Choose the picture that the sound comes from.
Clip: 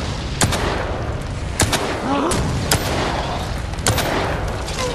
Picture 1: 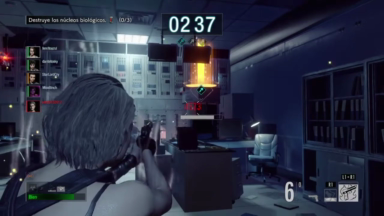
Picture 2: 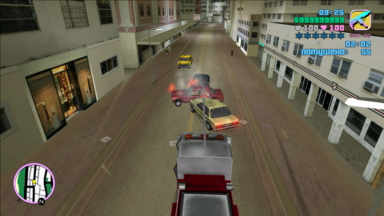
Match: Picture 1